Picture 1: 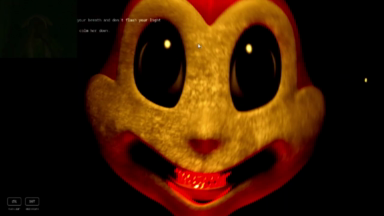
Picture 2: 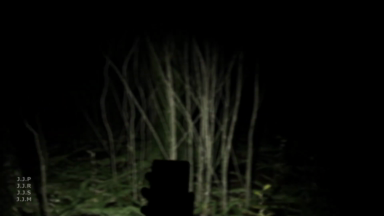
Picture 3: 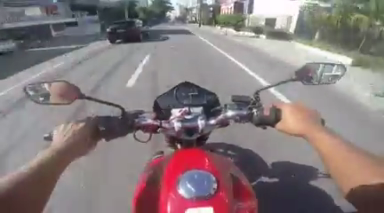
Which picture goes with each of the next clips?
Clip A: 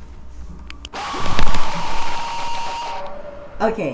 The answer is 1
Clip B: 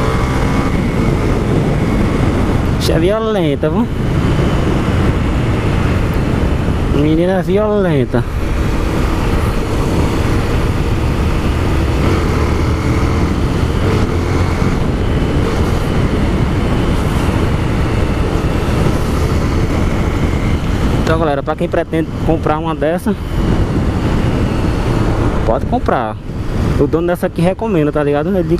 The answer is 3